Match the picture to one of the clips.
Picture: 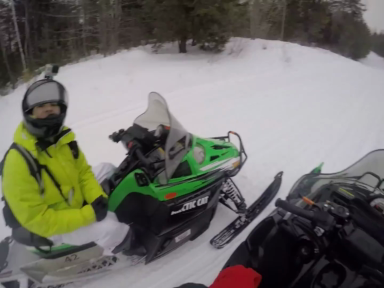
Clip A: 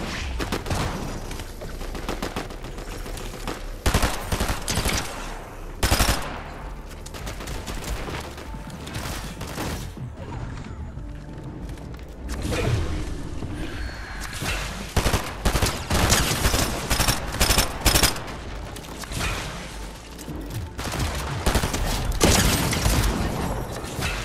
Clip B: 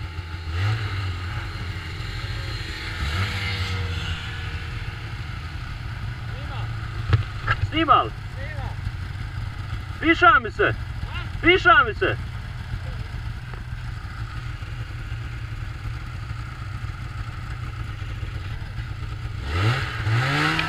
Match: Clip B